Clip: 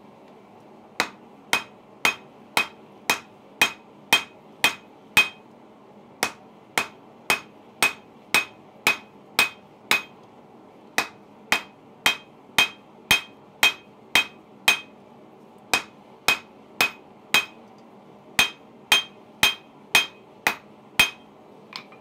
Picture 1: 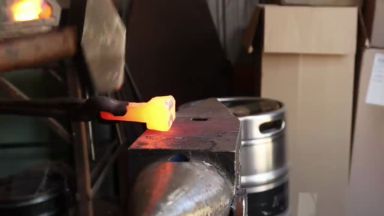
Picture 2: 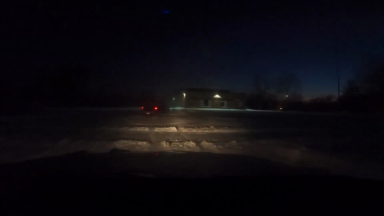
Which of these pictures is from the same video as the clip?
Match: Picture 1